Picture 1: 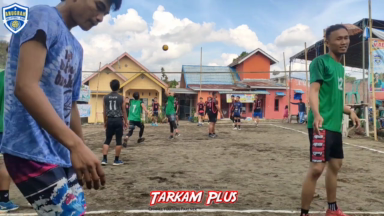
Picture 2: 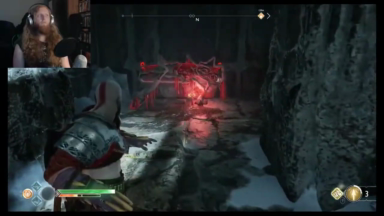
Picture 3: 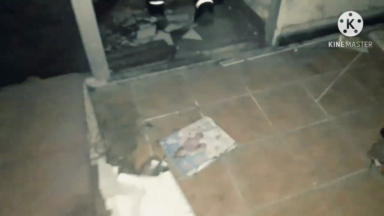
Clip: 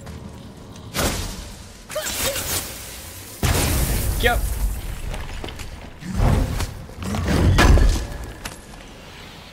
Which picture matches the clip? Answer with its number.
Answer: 2